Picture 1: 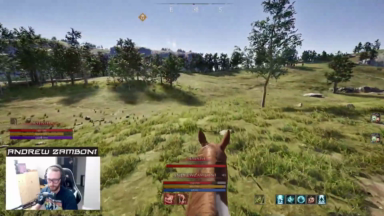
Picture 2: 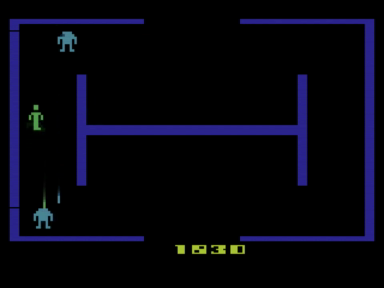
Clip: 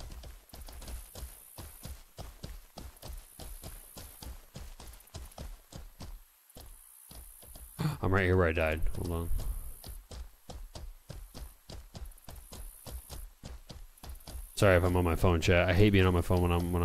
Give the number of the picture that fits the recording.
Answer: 1